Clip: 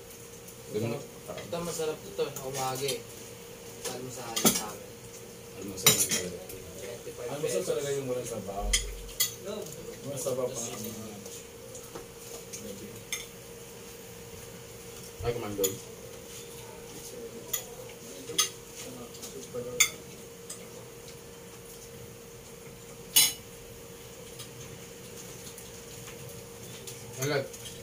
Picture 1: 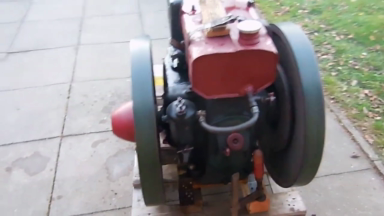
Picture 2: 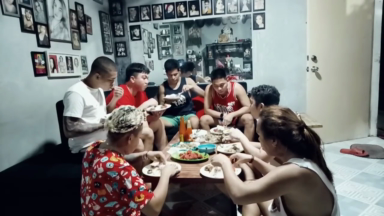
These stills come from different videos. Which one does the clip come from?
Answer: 2